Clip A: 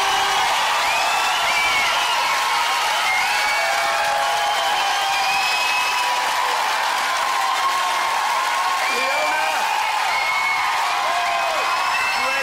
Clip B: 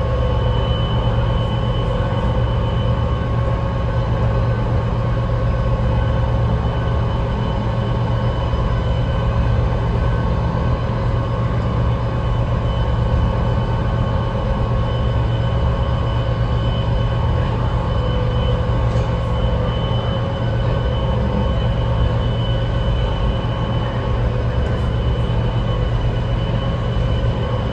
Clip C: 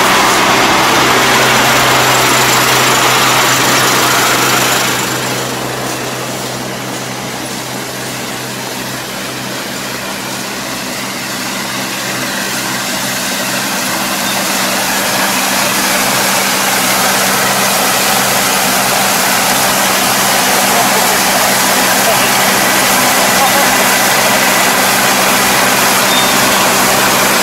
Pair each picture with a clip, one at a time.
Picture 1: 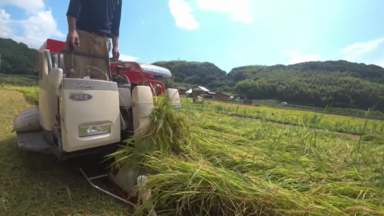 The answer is C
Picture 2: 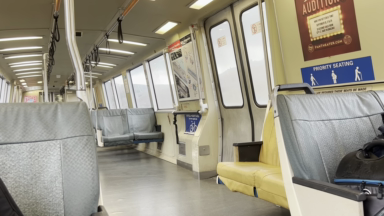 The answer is B